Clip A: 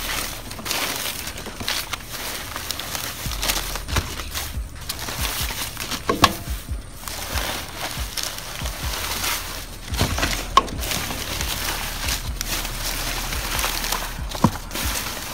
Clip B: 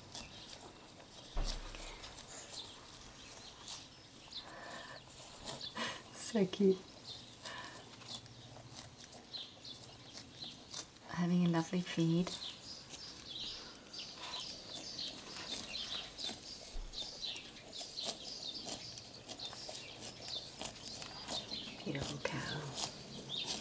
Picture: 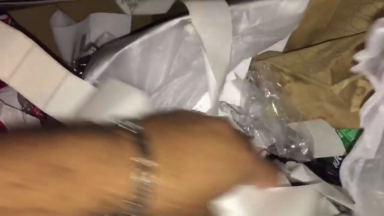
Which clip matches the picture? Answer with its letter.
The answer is A